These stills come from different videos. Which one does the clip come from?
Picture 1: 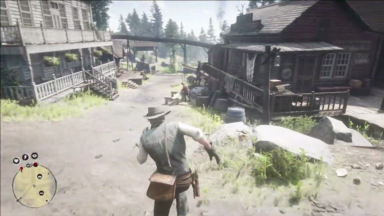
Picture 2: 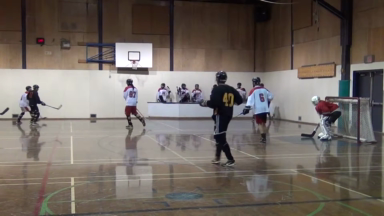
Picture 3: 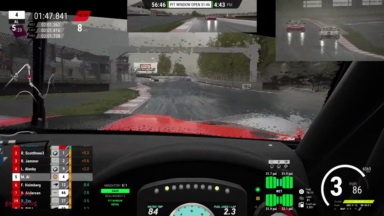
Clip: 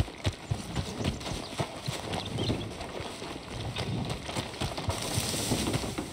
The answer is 1